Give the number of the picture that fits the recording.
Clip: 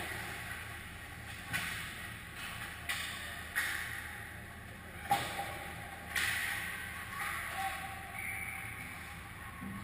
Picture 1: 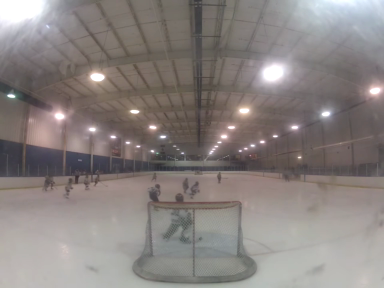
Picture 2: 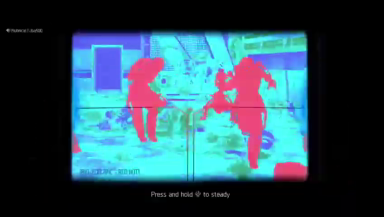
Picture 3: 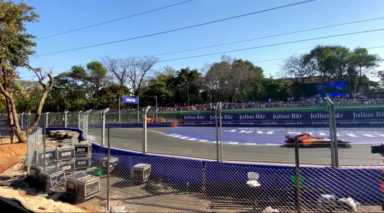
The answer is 1